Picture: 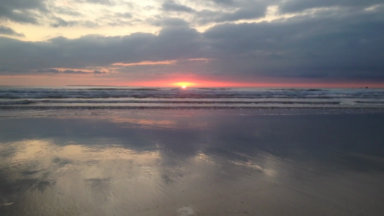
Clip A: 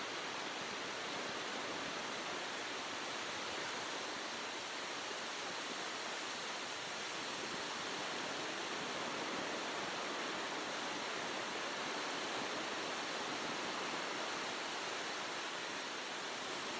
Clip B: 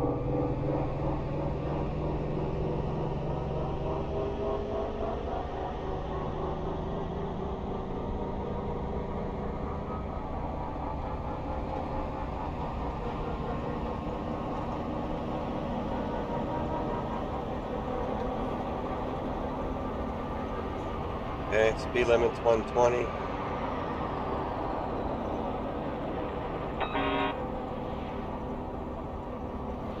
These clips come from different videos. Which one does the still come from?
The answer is A